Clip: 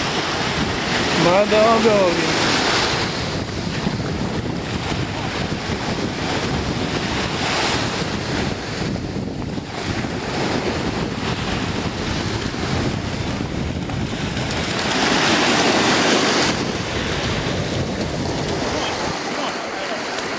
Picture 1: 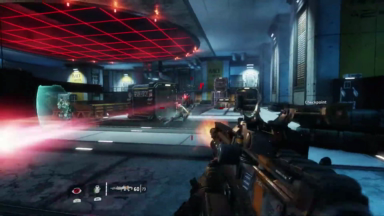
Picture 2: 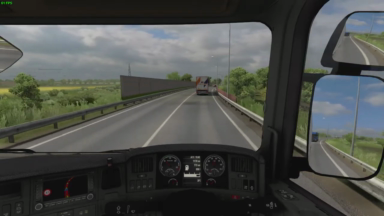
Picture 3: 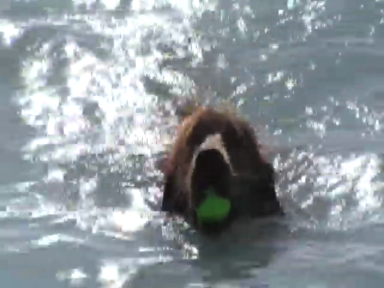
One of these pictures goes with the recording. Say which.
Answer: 3